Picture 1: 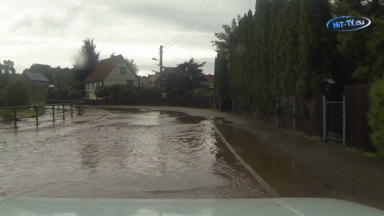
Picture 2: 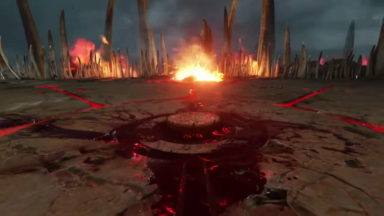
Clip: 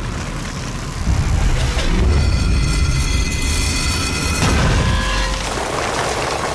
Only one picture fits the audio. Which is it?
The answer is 2